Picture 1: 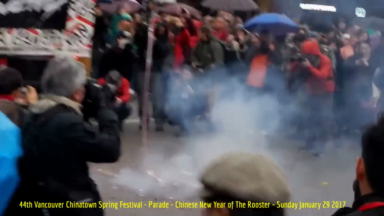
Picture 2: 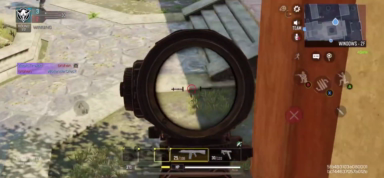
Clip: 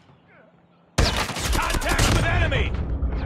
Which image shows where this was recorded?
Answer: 2